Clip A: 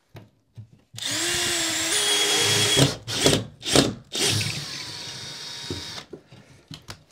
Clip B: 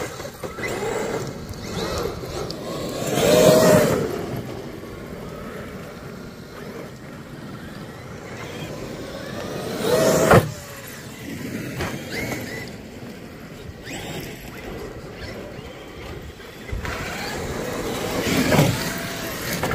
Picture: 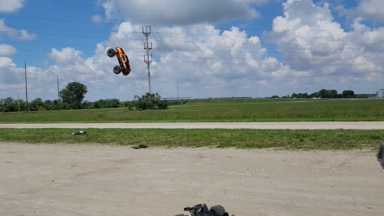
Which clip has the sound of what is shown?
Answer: B